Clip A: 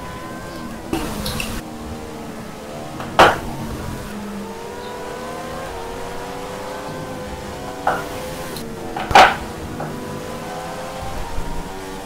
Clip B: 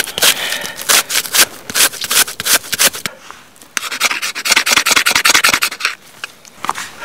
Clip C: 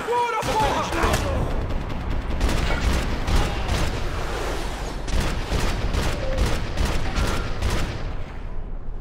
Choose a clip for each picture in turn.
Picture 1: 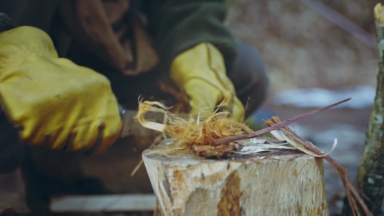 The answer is B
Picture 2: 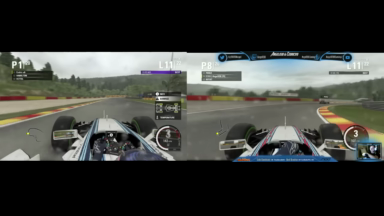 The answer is A